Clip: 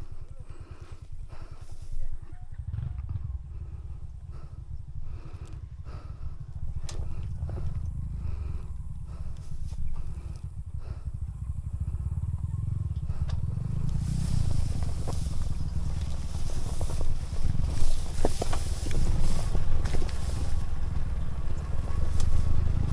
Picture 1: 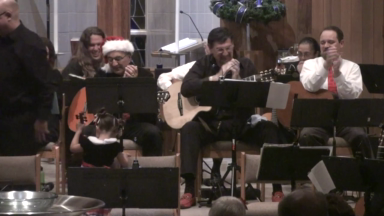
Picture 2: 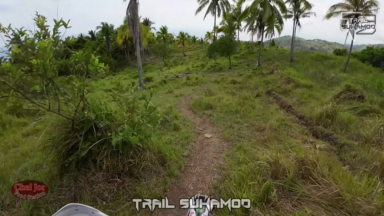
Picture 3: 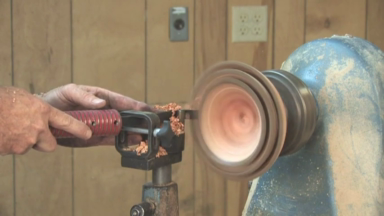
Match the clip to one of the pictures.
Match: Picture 2